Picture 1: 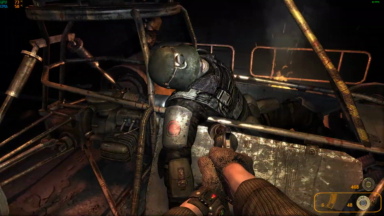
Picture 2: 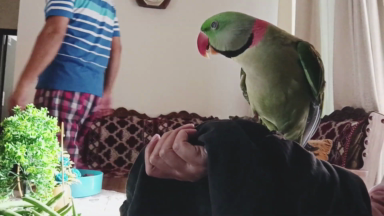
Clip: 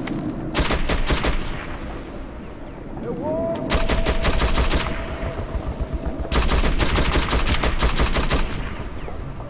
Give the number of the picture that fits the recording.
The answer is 1